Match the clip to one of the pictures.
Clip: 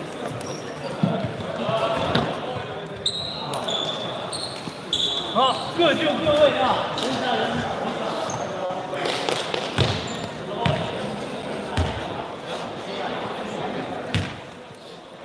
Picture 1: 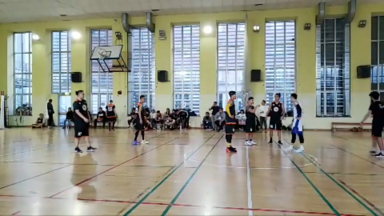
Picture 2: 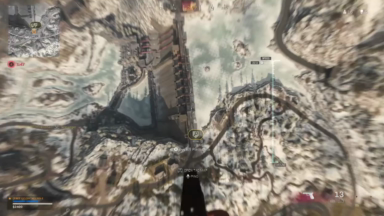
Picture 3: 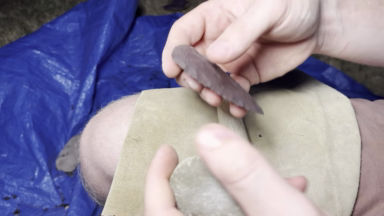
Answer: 1